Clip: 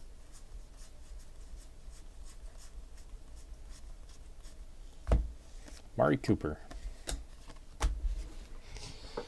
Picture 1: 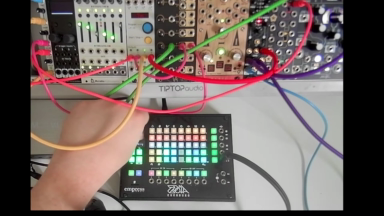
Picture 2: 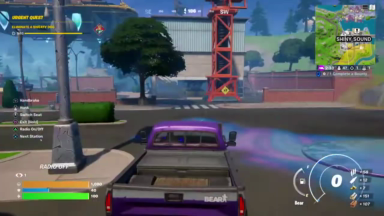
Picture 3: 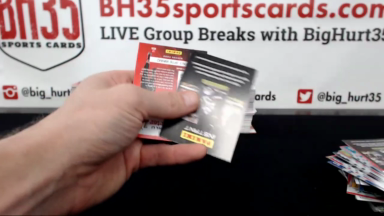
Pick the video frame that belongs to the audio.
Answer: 3